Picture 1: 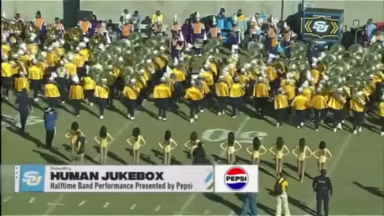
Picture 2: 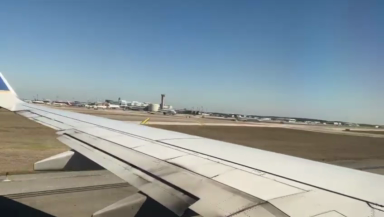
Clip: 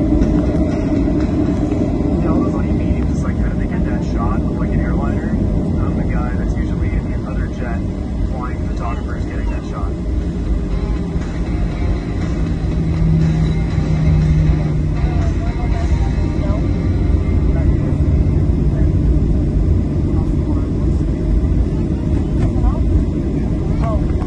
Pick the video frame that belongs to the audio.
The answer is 2